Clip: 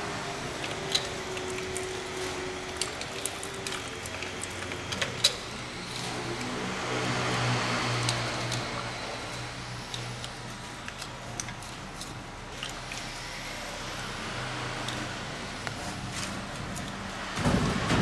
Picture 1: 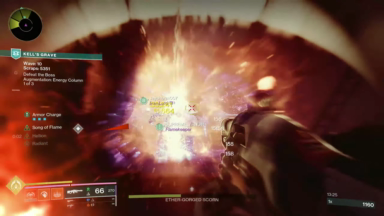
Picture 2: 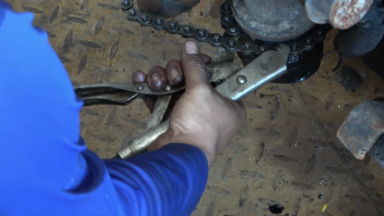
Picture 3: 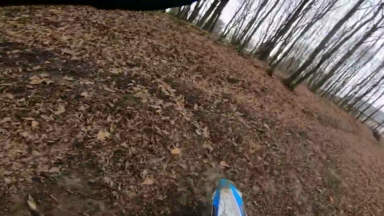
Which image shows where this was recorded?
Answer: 2